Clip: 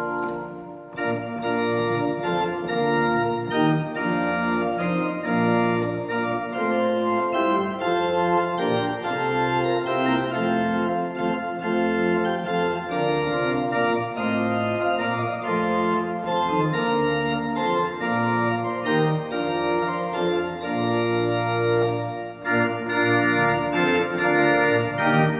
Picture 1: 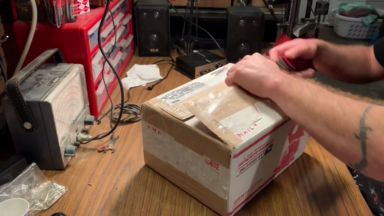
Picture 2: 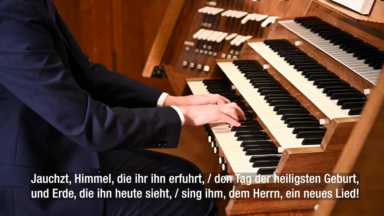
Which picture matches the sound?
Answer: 2